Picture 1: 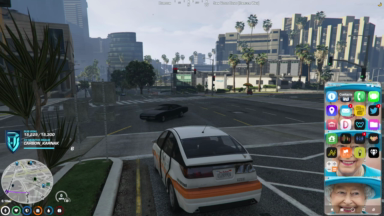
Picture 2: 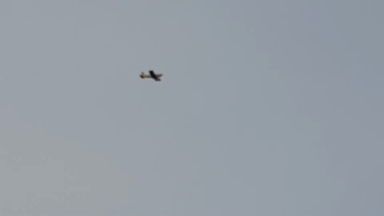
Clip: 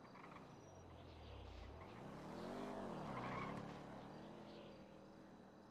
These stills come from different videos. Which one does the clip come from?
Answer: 1